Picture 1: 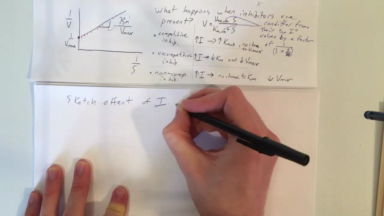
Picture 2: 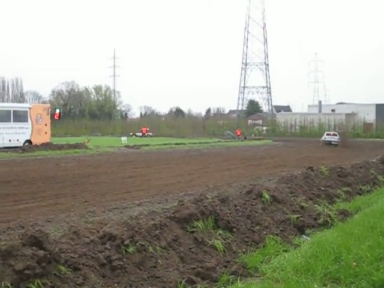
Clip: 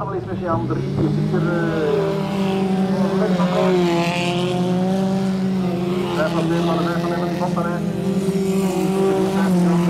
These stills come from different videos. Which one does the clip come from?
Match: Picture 2